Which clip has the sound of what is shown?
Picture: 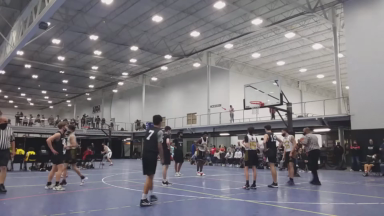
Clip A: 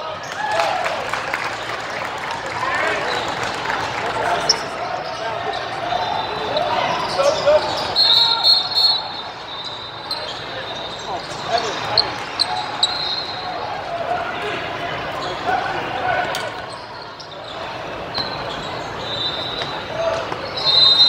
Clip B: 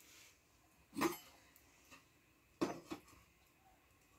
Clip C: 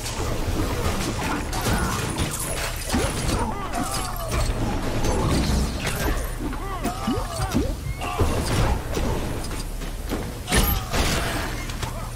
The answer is A